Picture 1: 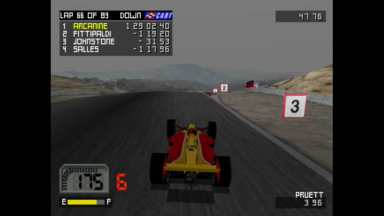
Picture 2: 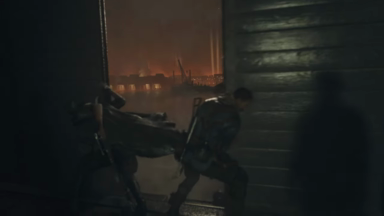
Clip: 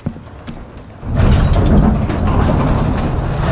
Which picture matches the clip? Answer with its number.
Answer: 2